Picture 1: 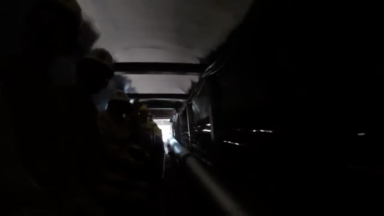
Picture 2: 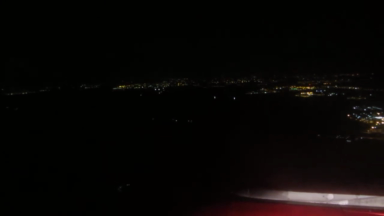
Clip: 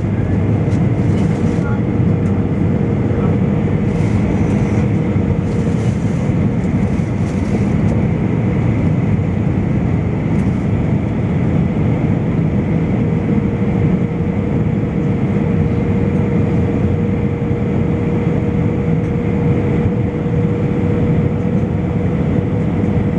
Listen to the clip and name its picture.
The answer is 2